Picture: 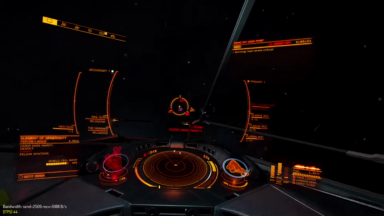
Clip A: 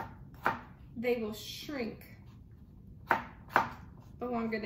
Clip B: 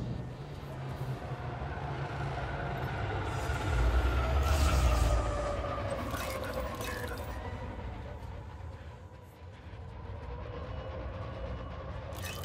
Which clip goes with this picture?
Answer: B